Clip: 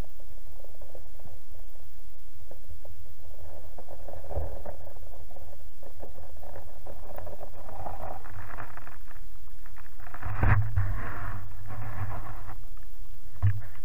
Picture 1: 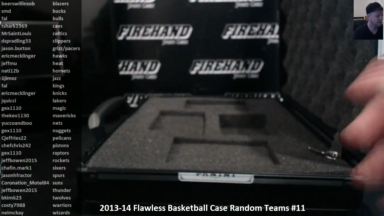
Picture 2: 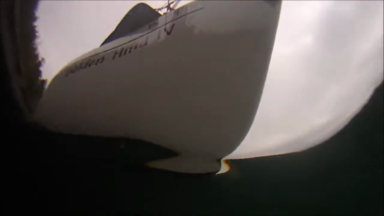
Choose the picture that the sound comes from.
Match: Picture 2